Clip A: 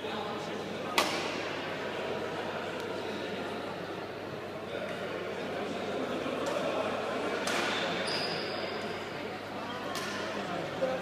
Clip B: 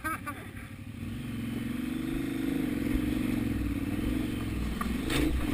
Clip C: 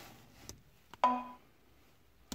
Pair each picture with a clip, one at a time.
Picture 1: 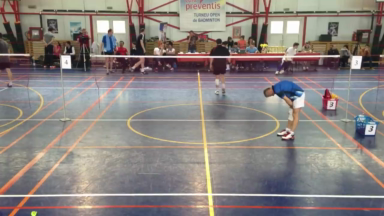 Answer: A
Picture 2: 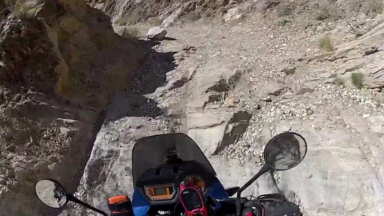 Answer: B